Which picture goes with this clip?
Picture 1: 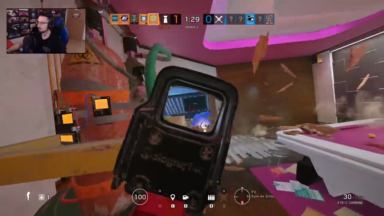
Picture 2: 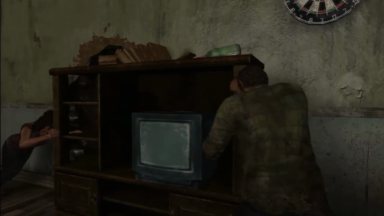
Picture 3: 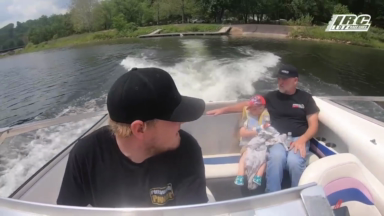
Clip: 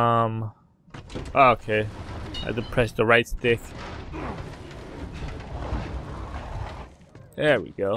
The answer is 2